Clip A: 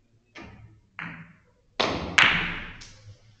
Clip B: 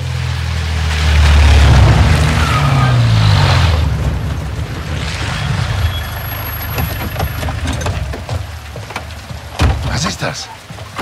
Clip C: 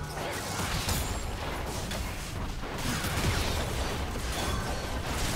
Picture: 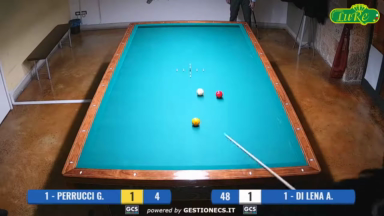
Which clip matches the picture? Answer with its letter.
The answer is A